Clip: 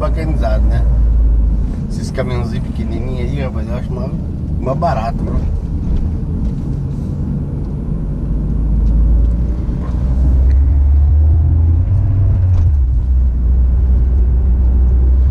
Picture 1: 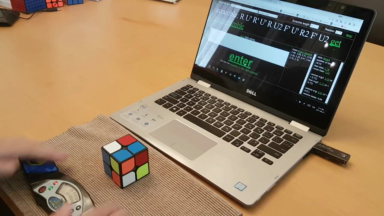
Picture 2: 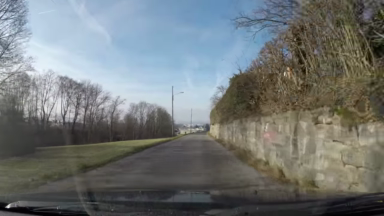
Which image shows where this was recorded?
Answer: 2